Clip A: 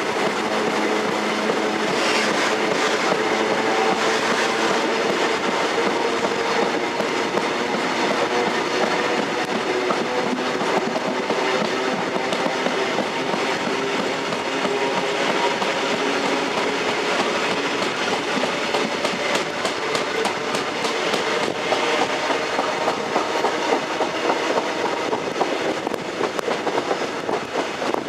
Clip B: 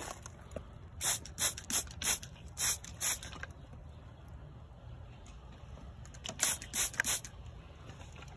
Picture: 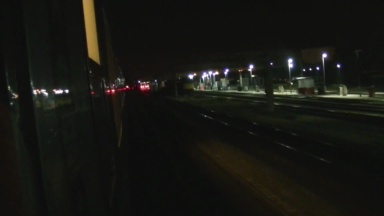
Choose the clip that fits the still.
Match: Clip A